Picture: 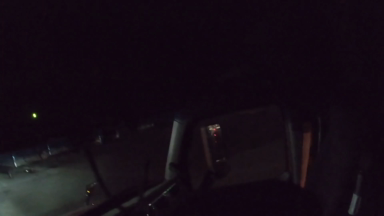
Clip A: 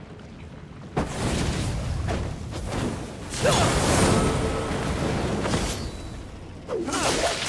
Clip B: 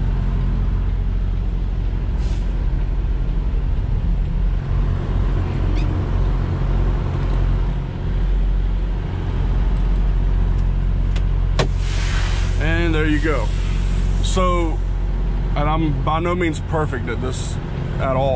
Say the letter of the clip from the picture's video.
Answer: B